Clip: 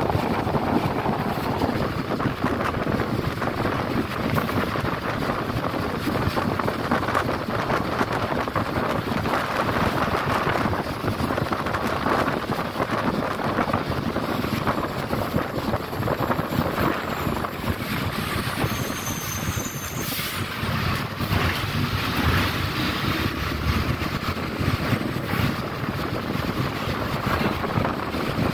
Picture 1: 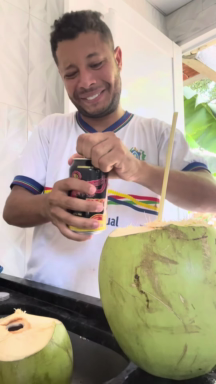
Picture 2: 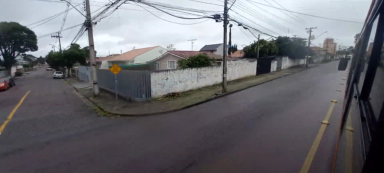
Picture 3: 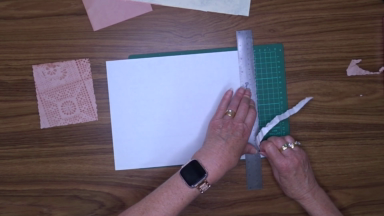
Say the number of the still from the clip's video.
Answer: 2